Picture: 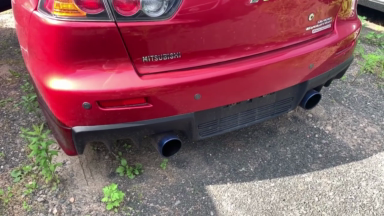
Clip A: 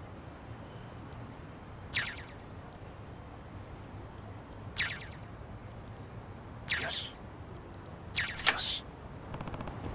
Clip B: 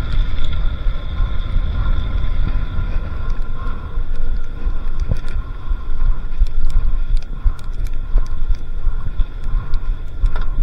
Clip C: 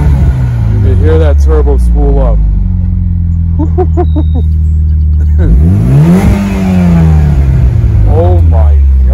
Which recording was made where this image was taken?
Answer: C